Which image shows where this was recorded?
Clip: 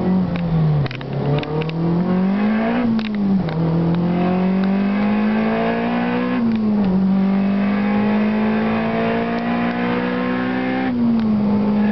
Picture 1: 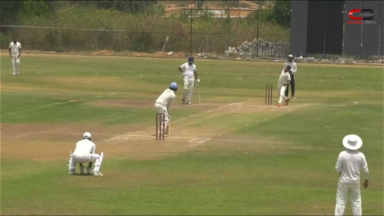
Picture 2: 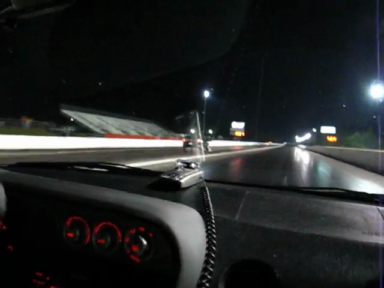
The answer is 2